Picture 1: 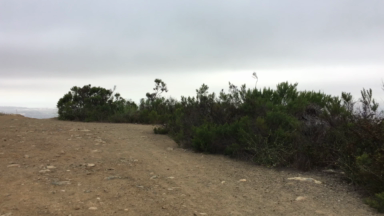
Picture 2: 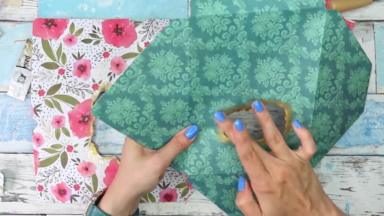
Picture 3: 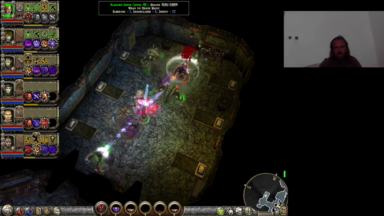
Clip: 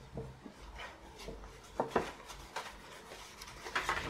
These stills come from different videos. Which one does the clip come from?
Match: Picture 2